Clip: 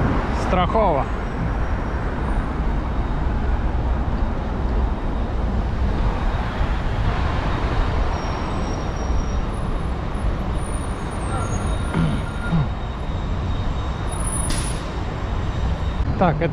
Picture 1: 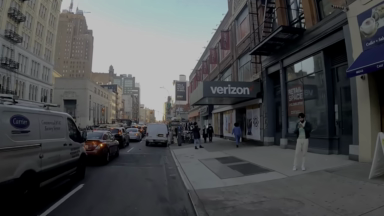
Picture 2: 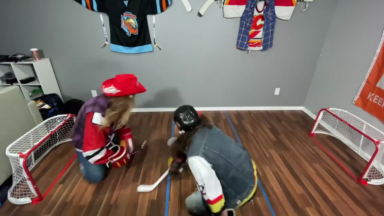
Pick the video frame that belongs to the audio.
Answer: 1